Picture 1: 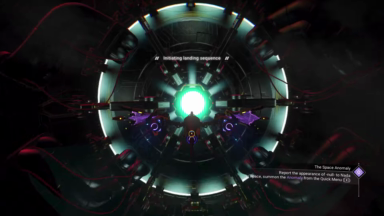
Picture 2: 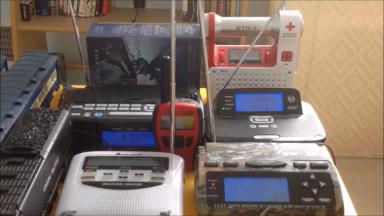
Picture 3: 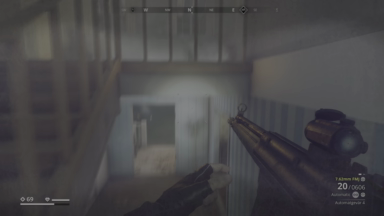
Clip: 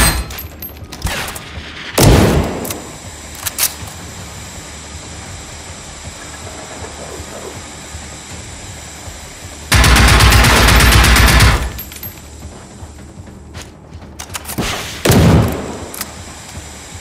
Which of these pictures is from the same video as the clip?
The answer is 3